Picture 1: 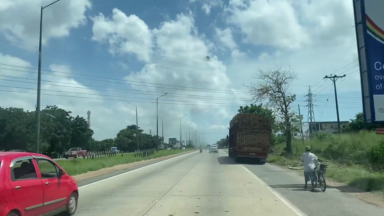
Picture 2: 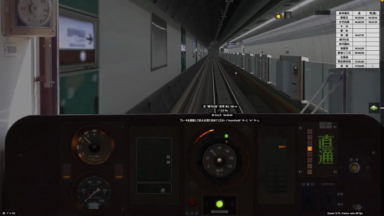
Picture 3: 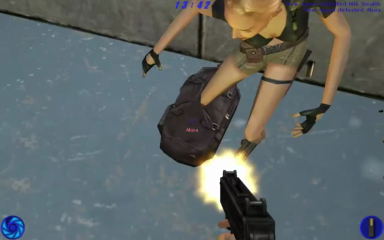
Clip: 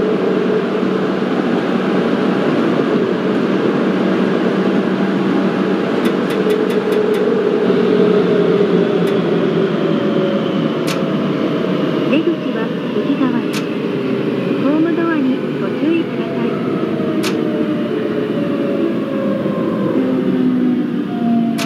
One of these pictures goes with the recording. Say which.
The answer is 2